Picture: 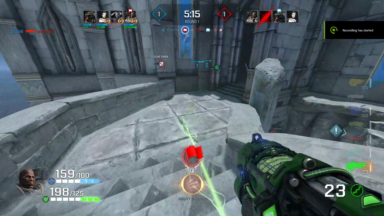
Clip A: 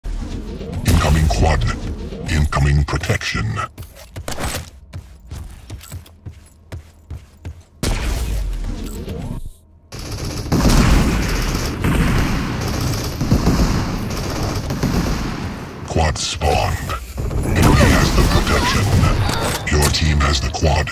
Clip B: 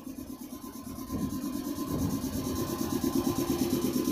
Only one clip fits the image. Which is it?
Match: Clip A